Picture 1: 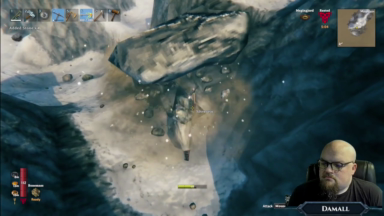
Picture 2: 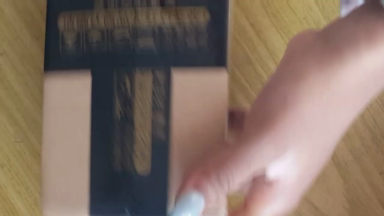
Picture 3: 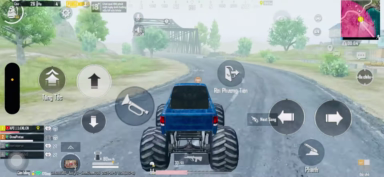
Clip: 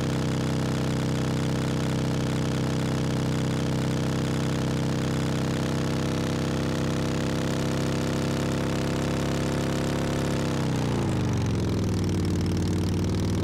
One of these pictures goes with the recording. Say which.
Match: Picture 3